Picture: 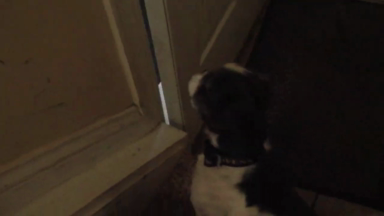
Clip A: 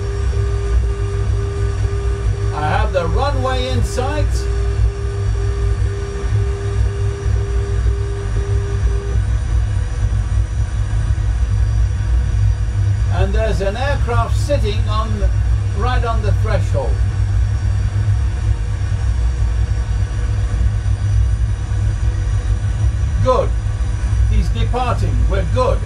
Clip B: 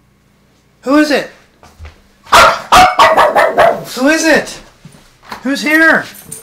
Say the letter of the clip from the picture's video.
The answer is B